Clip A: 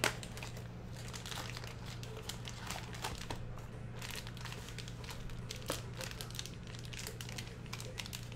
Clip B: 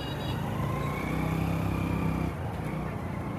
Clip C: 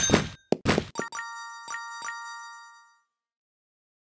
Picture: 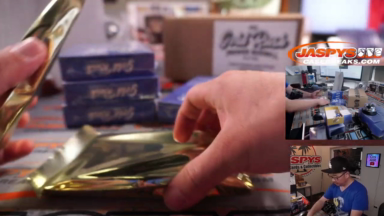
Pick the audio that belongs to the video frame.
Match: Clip A